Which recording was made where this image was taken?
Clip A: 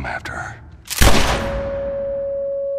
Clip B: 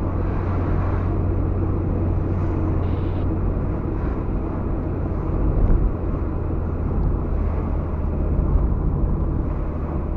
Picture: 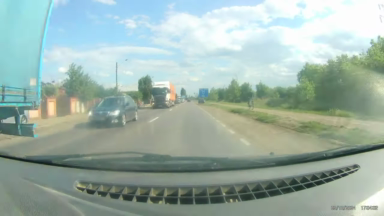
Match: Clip B